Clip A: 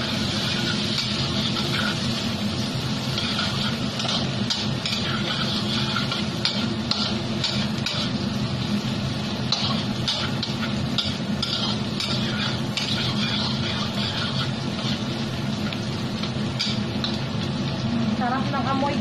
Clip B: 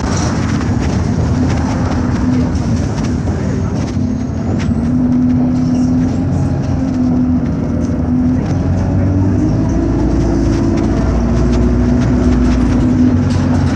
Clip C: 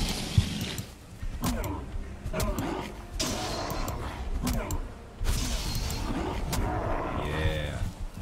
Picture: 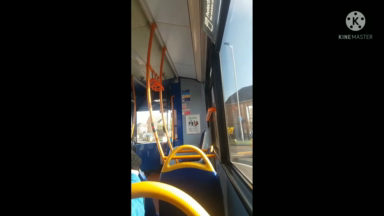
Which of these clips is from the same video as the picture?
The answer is B